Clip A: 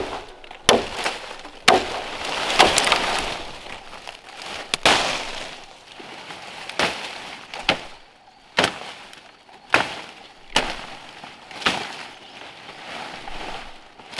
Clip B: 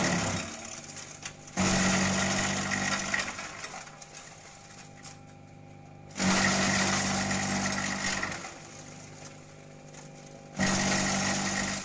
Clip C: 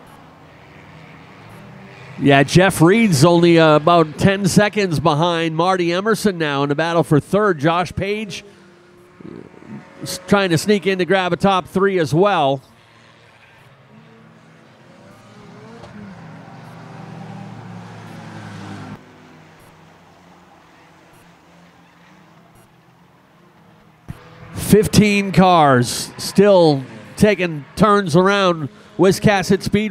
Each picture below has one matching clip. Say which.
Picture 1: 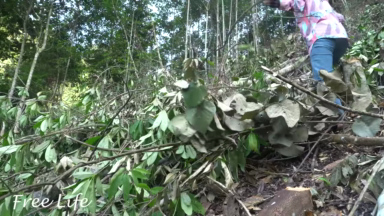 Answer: A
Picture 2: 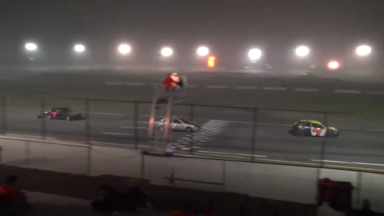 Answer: C